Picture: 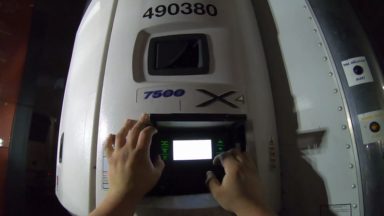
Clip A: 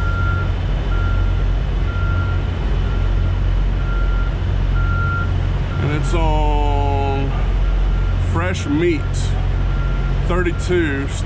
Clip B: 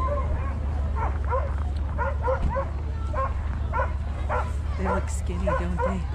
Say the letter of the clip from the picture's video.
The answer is A